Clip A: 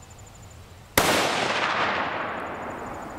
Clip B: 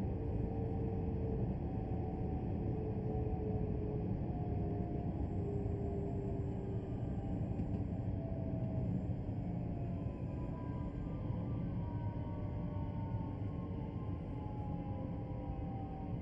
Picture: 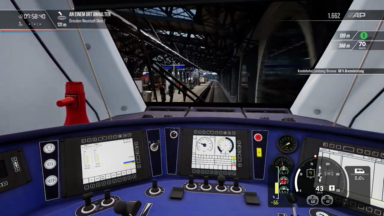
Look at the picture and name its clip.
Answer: B